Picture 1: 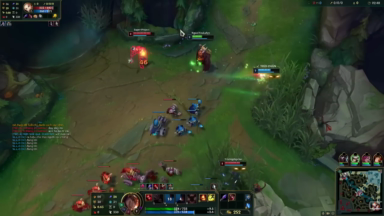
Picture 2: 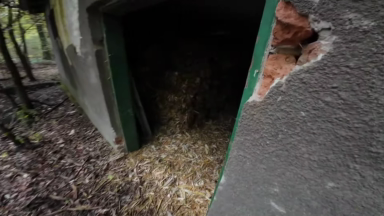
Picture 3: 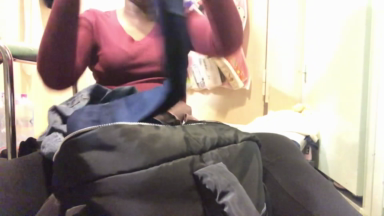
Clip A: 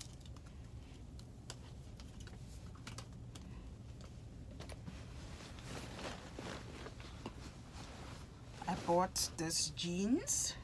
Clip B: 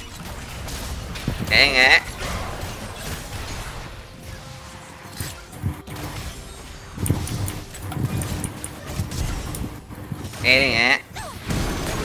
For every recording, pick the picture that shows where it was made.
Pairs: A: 3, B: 1